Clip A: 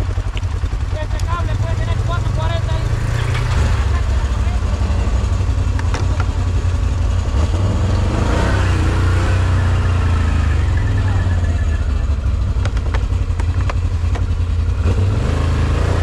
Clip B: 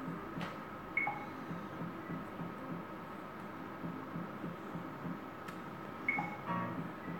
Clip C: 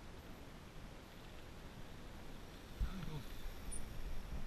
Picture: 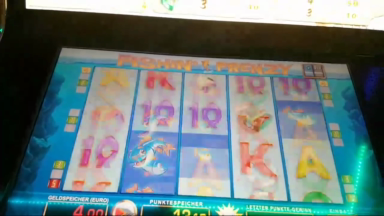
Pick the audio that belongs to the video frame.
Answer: B